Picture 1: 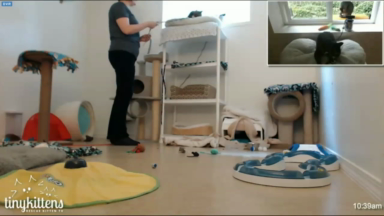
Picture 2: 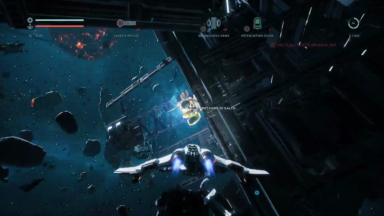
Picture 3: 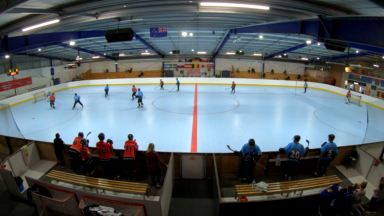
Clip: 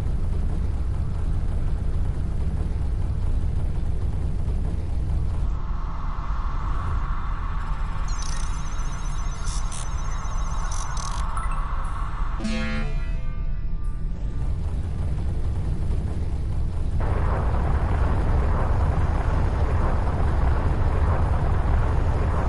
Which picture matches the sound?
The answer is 2